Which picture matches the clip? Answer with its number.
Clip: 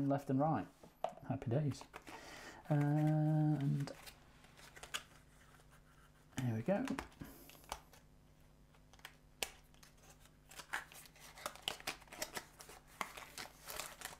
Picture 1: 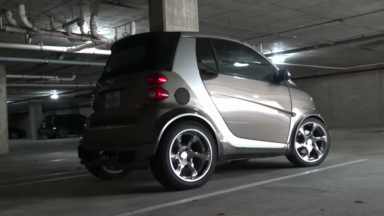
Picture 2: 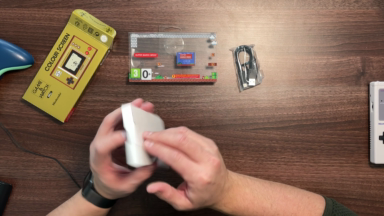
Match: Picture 2